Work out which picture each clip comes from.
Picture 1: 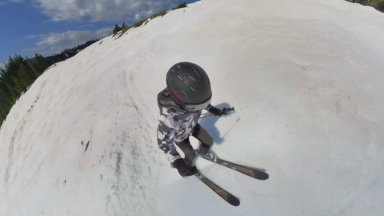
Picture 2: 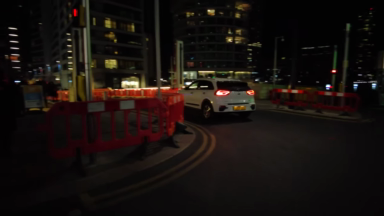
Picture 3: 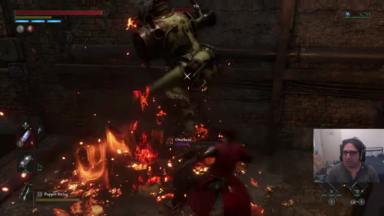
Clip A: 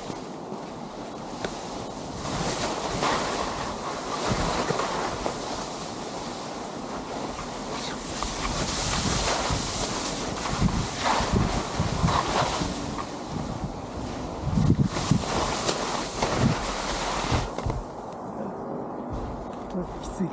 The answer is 1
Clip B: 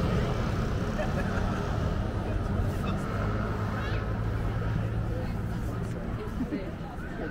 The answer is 2